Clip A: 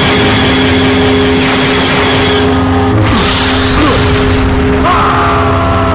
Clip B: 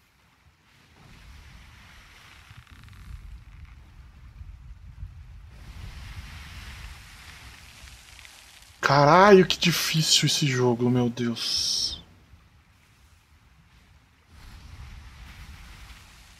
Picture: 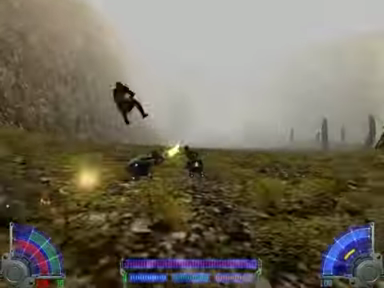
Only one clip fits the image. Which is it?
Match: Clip A